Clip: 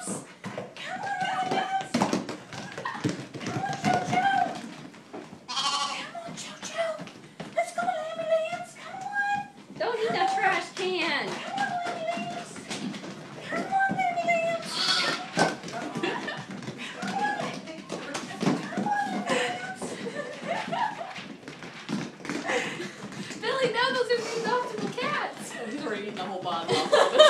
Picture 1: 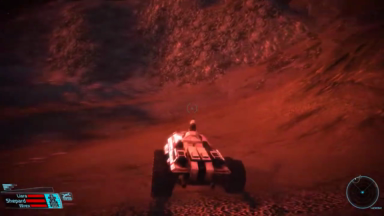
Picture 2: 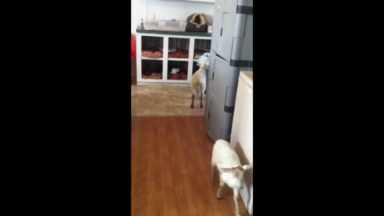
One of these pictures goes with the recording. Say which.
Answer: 2